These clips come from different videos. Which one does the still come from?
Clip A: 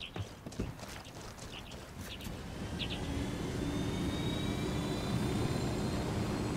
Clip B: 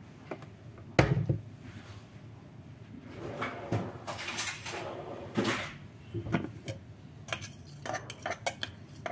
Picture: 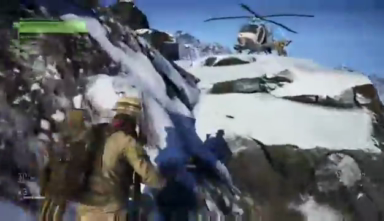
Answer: A